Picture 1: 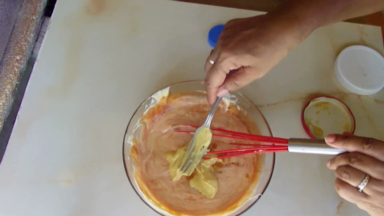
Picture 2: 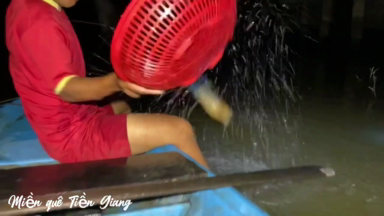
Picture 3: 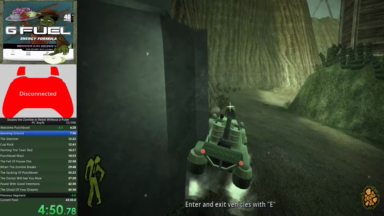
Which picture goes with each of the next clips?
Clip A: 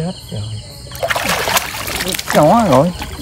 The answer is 2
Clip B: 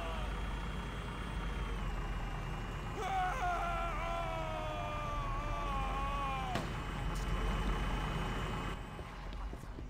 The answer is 3